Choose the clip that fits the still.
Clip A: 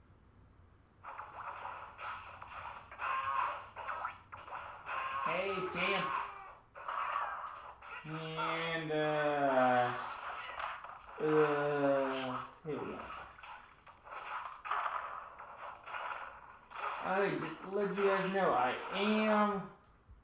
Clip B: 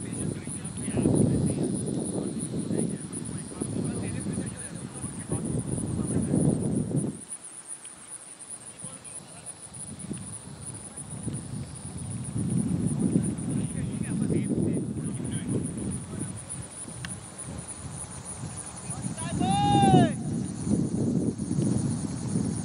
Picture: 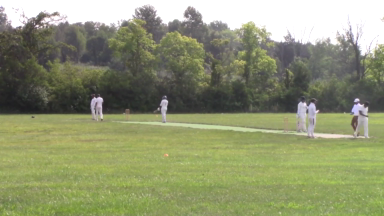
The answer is B